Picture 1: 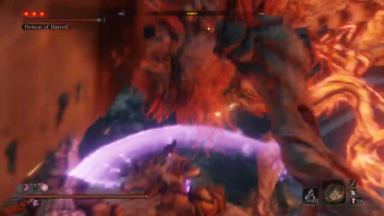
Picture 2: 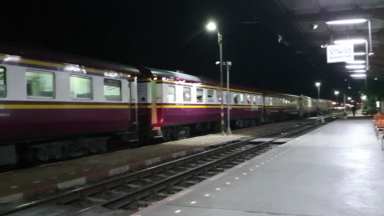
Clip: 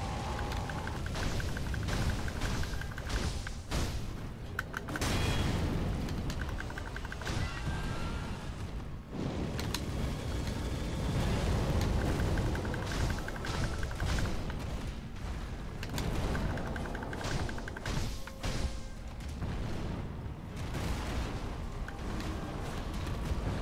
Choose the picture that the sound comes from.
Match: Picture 1